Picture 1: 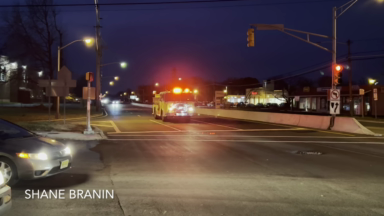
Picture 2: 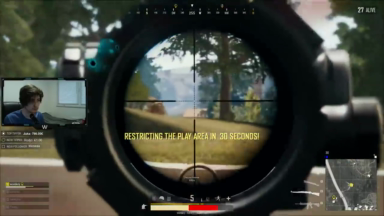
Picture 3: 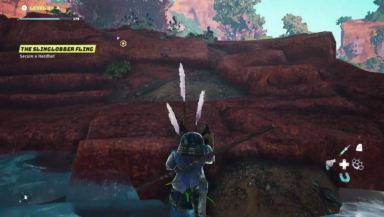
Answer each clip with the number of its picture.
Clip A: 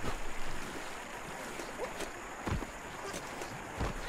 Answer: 3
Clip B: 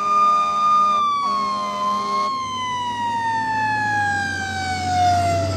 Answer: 1